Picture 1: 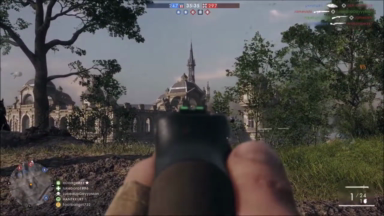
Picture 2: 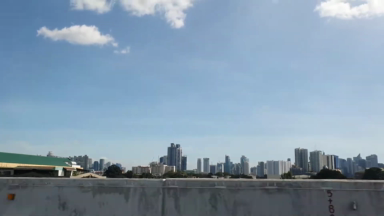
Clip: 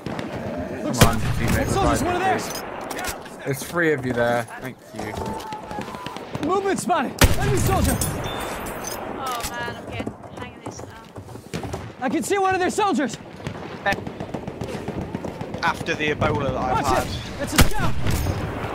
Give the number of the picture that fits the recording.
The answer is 1